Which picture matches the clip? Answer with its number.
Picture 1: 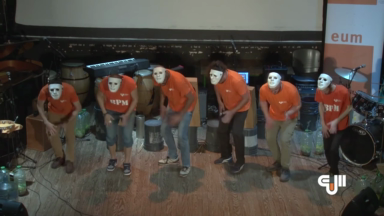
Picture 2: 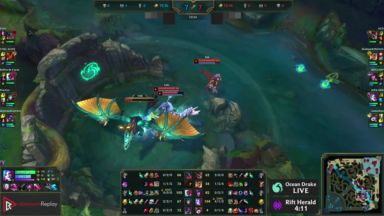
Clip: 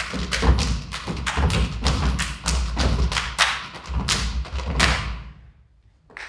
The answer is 1